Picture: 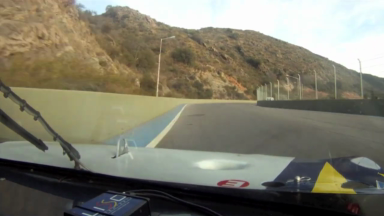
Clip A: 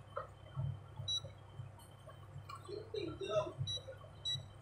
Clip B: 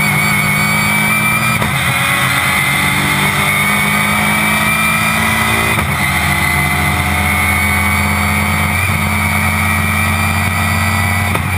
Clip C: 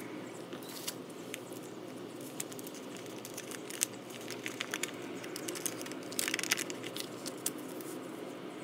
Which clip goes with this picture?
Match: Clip B